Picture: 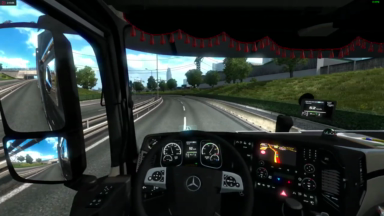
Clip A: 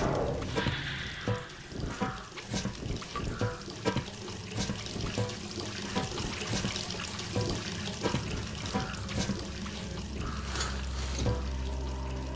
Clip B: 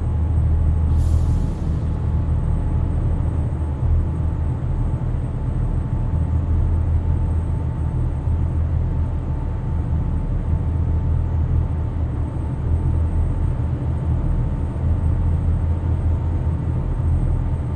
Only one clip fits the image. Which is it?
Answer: B